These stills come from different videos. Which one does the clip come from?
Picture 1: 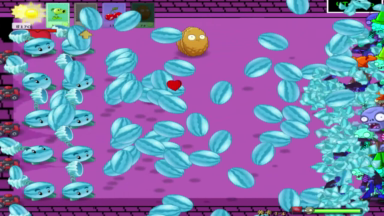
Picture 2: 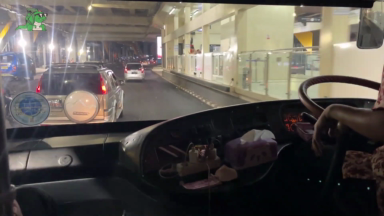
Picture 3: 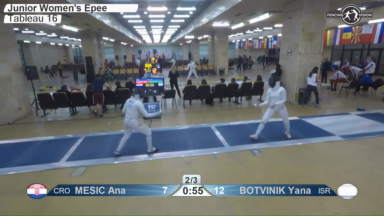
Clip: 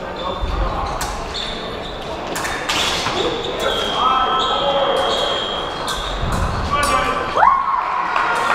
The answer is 3